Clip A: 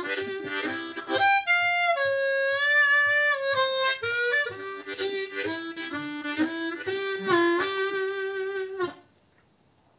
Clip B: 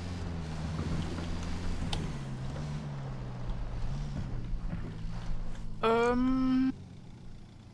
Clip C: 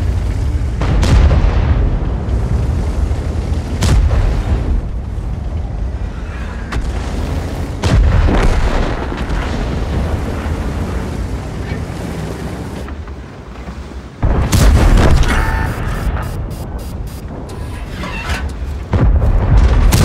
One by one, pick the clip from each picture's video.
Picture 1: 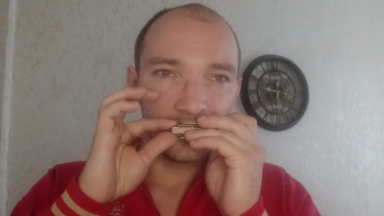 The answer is A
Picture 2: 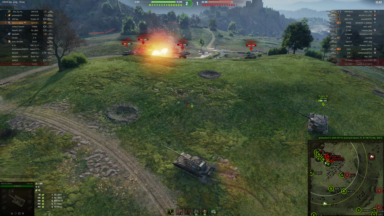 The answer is C